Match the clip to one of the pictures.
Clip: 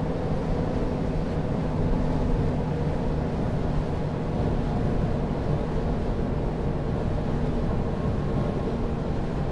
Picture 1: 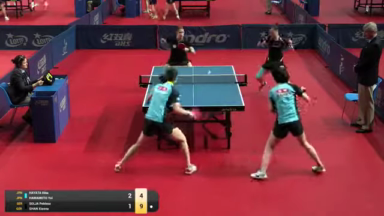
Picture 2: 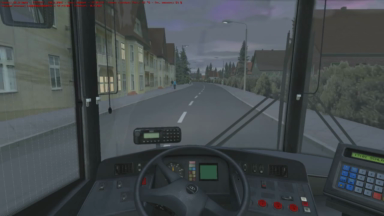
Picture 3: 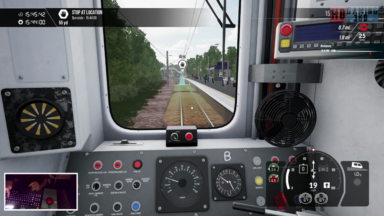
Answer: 2